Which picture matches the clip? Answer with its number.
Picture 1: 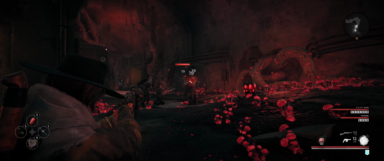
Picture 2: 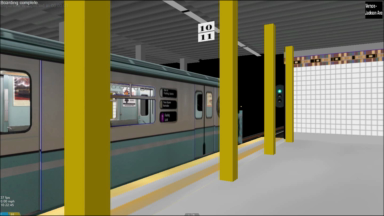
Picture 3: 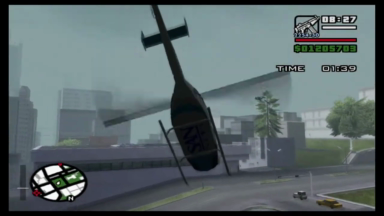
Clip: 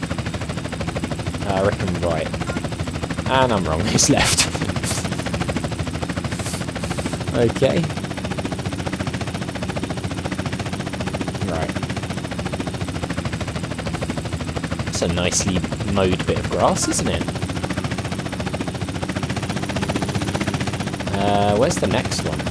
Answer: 3